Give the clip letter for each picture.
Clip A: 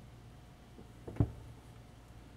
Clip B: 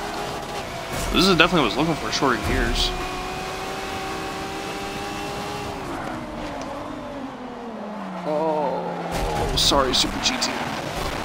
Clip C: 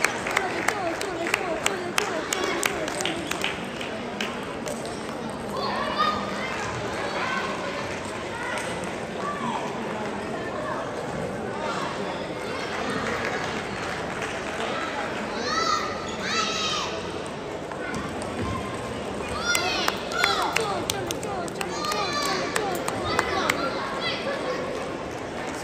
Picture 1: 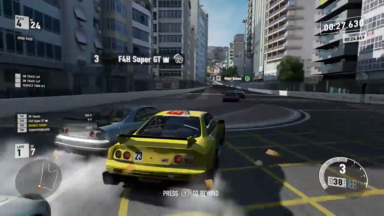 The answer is B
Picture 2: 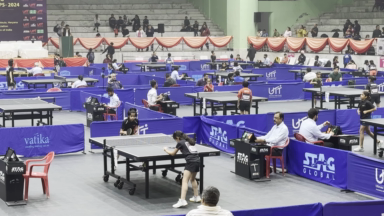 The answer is C